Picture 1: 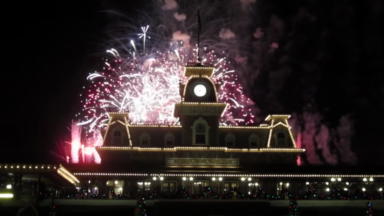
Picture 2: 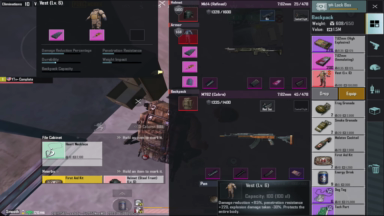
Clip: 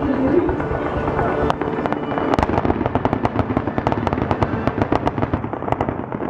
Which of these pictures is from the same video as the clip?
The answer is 1